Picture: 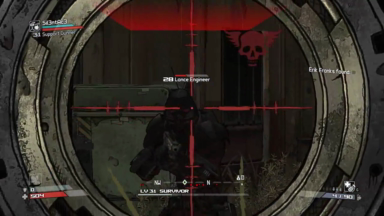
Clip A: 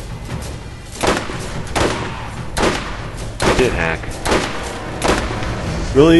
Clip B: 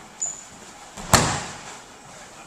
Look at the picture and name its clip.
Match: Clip A